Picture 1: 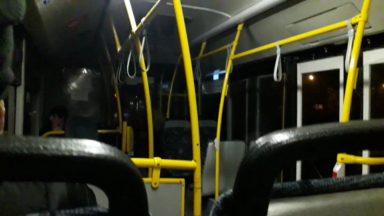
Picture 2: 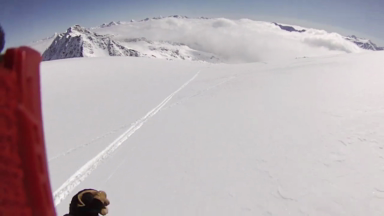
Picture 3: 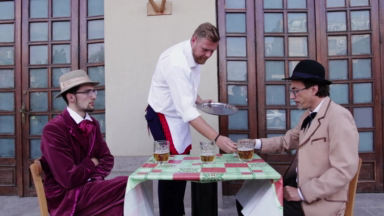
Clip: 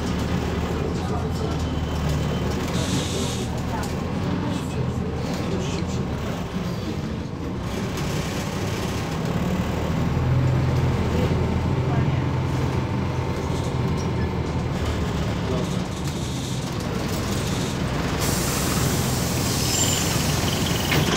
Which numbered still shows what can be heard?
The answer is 1